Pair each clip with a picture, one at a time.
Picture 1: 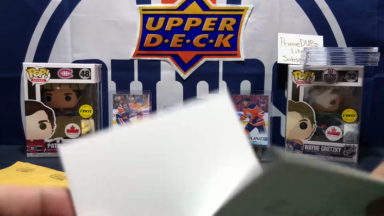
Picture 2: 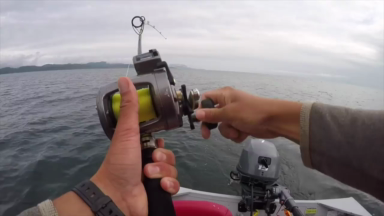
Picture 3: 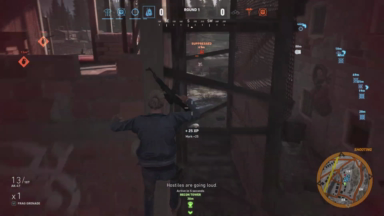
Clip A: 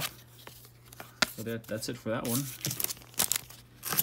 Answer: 1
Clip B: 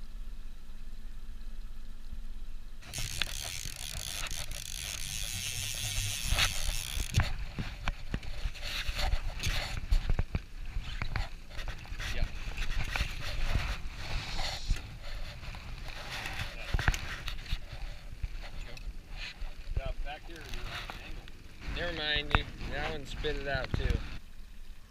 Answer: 2